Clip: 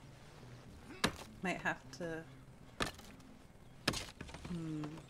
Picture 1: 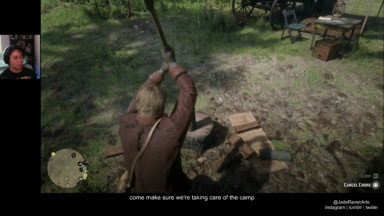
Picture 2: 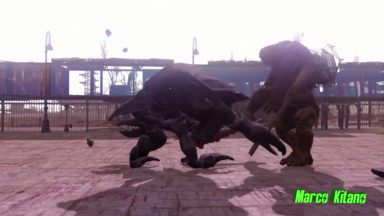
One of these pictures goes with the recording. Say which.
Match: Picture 1